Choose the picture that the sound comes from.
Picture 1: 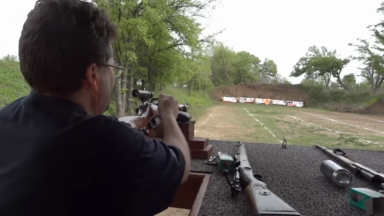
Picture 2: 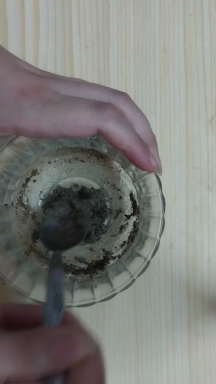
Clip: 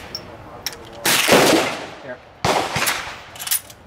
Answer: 1